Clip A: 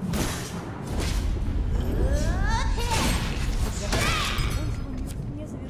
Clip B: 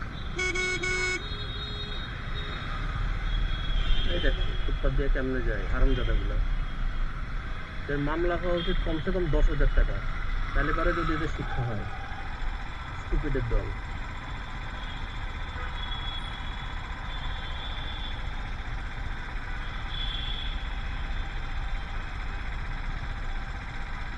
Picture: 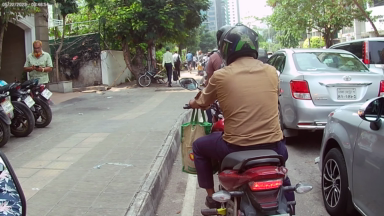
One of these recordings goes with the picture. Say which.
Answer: B